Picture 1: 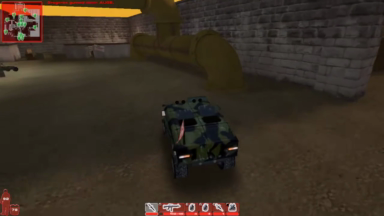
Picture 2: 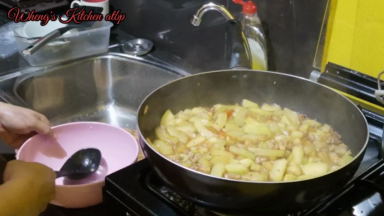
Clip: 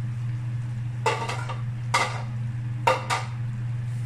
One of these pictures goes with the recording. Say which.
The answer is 2